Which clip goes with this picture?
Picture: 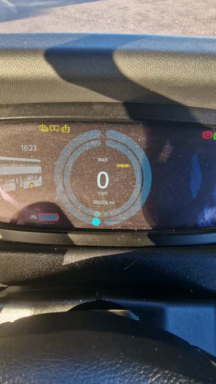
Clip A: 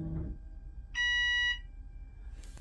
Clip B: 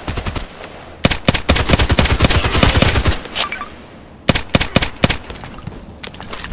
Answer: A